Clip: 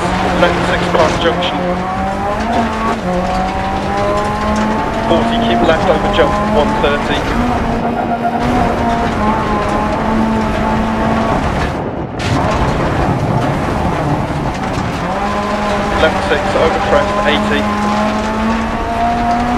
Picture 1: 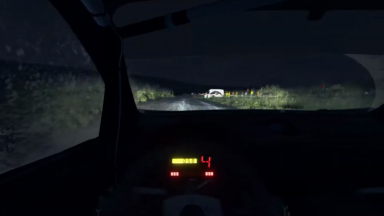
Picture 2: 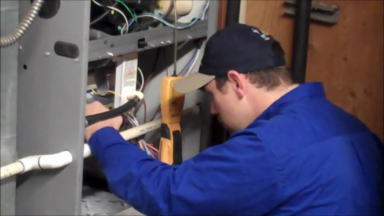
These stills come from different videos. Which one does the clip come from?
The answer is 1